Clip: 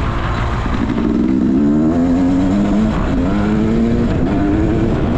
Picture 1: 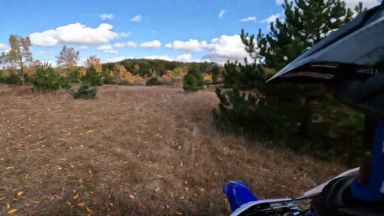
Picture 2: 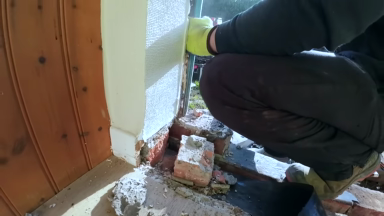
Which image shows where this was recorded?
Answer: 1